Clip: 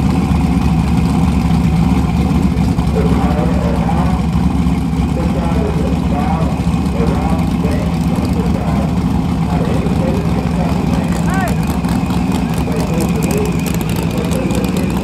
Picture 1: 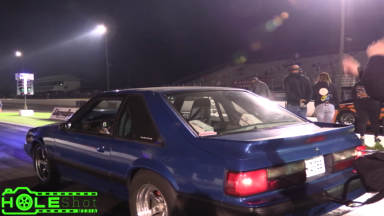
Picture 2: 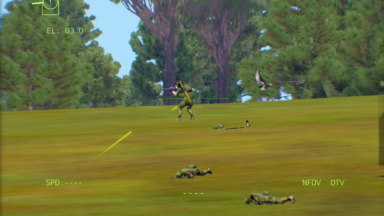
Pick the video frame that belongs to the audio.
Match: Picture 1